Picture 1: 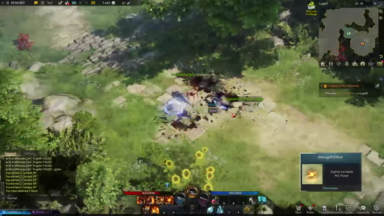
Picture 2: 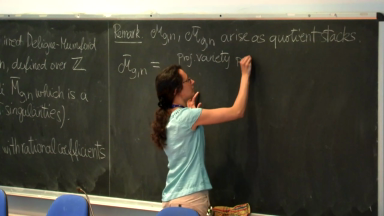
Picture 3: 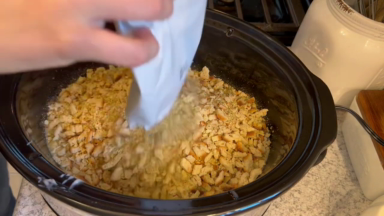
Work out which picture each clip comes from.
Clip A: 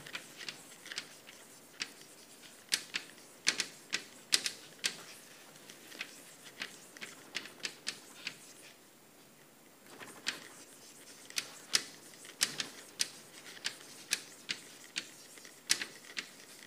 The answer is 2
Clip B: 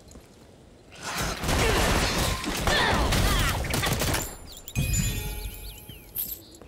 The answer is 1